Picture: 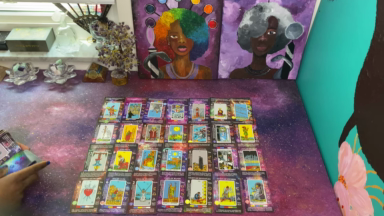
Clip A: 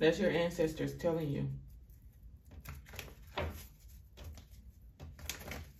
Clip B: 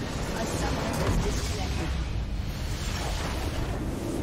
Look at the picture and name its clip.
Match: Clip A